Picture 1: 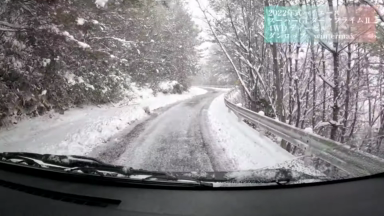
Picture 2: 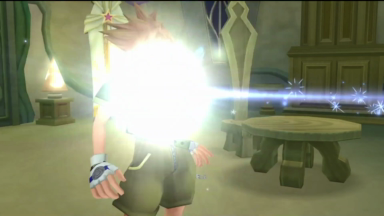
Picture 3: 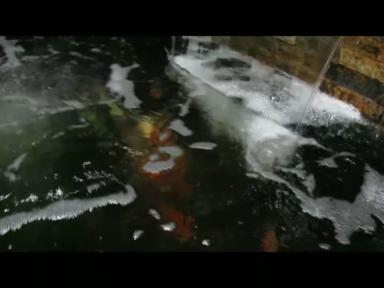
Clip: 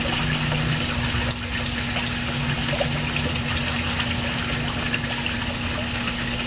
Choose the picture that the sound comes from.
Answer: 3